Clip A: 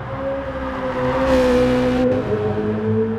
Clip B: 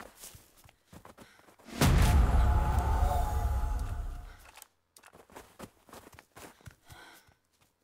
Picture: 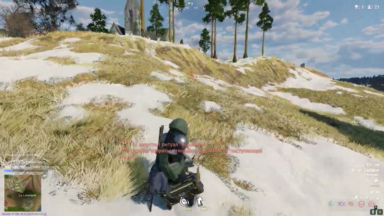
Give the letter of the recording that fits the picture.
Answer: B